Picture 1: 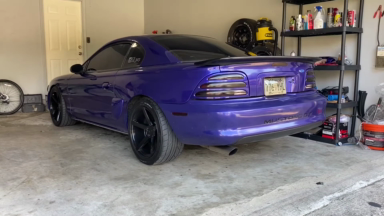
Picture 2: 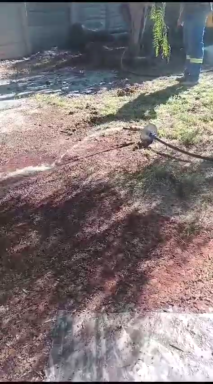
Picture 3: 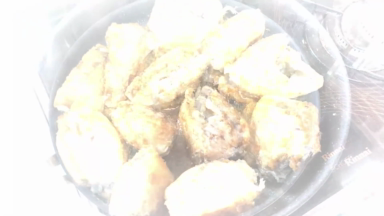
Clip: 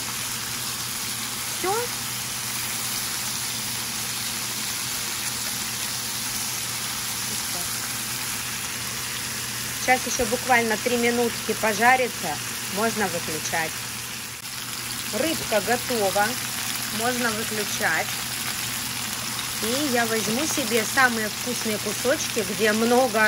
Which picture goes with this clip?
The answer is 3